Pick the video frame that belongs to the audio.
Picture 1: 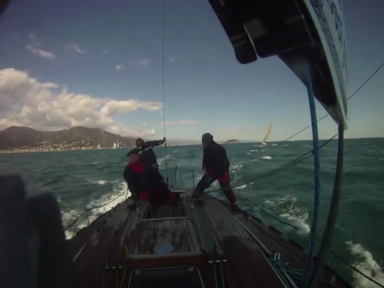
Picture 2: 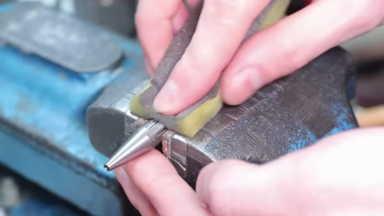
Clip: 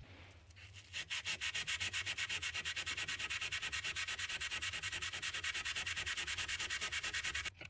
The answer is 2